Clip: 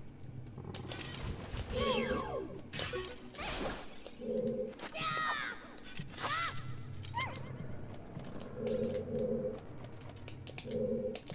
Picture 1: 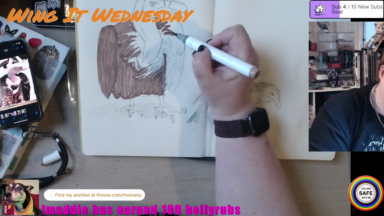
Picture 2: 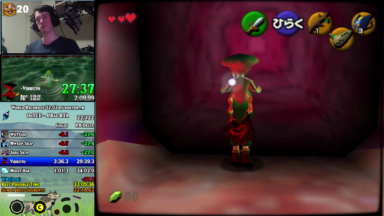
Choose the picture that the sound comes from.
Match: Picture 2